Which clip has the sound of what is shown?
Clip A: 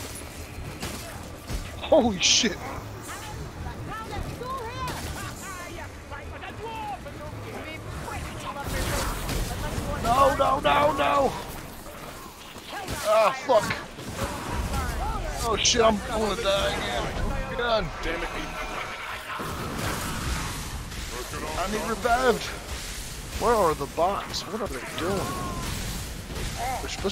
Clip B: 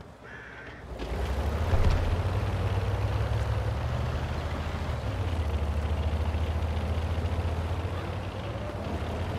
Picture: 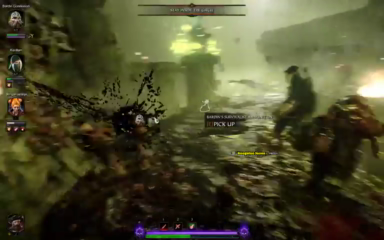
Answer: A